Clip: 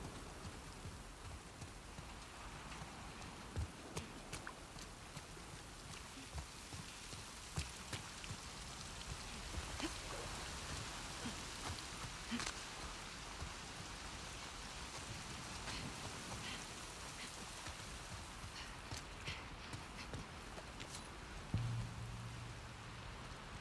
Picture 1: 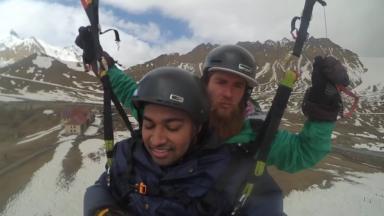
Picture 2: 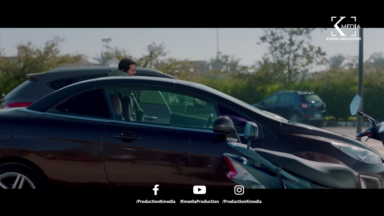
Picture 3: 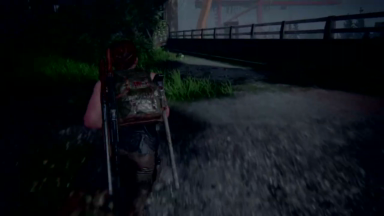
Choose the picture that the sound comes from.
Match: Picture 3